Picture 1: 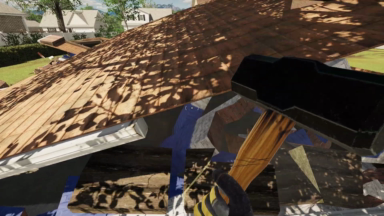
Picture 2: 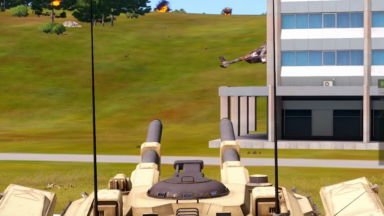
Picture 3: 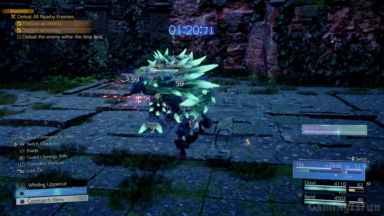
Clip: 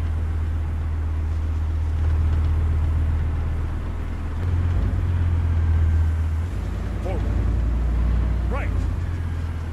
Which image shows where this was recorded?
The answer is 2